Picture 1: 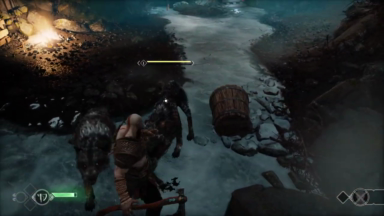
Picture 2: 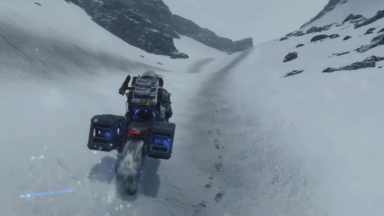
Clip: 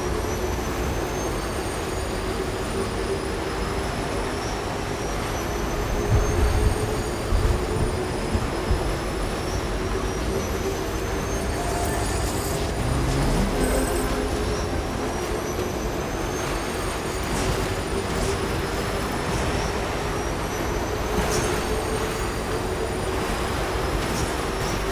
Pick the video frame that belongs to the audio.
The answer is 2